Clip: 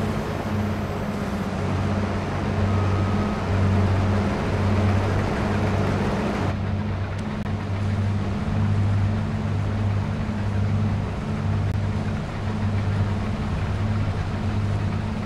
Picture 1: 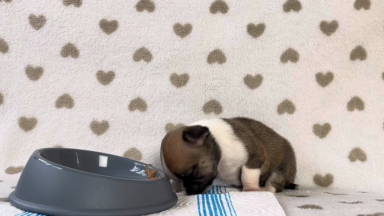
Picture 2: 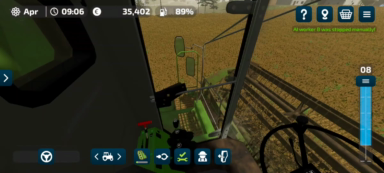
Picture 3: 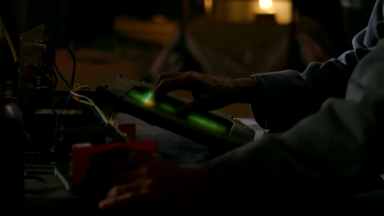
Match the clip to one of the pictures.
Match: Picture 2